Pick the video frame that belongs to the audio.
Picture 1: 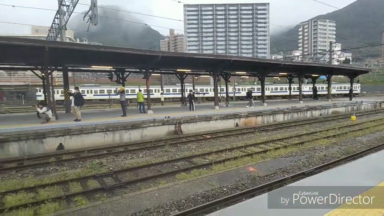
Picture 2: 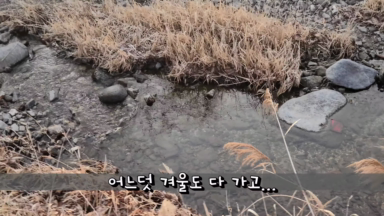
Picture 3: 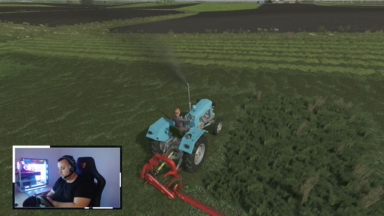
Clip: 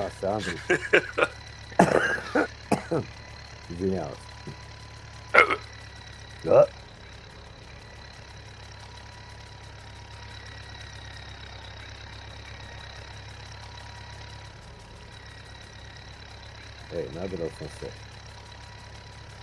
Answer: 3